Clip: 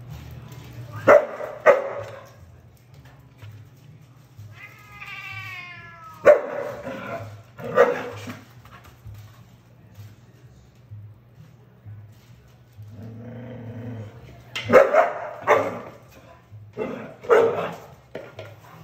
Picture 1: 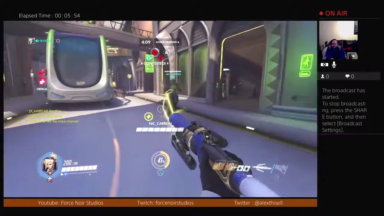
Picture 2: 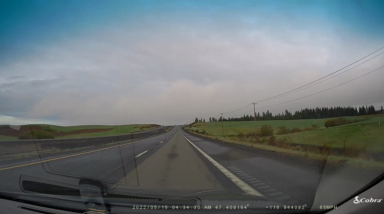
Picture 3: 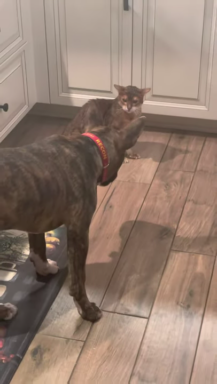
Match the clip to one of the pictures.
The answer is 3